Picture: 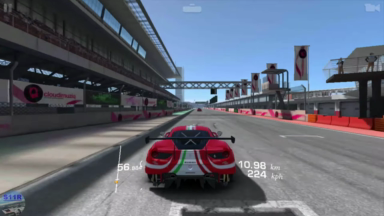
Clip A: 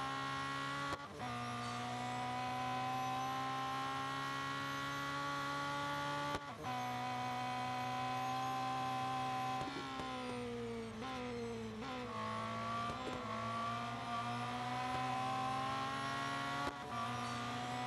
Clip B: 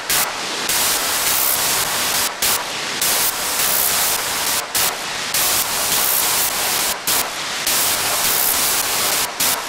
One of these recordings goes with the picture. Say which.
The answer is A